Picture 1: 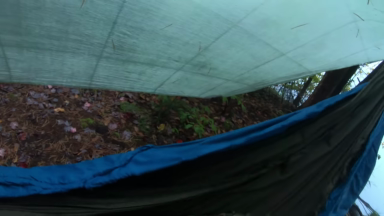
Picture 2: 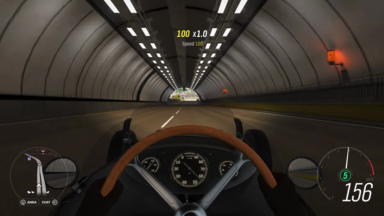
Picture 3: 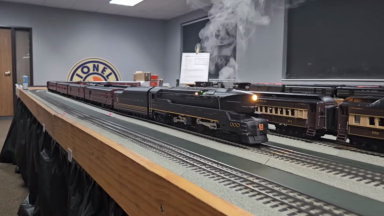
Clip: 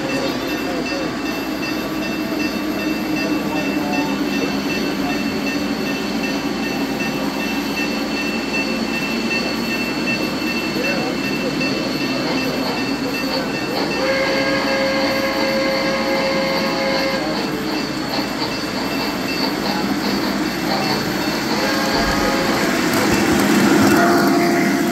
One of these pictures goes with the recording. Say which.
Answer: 3